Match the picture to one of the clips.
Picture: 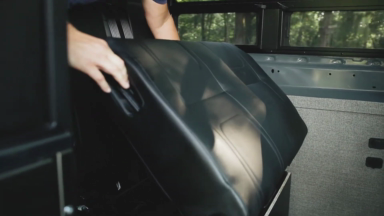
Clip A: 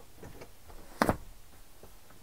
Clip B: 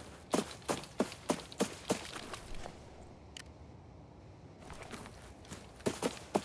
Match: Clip A